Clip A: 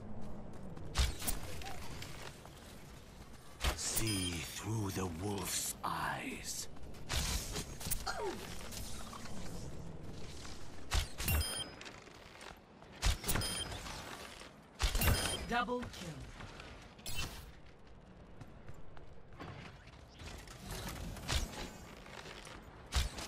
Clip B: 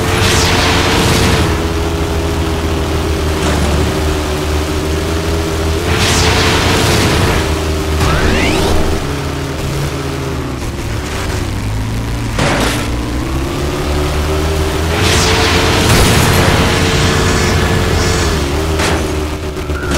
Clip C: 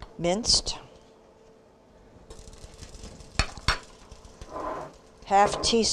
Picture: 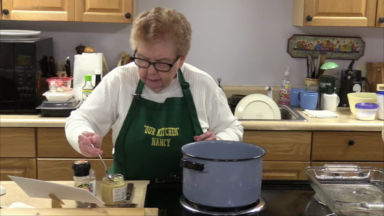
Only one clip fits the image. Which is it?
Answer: C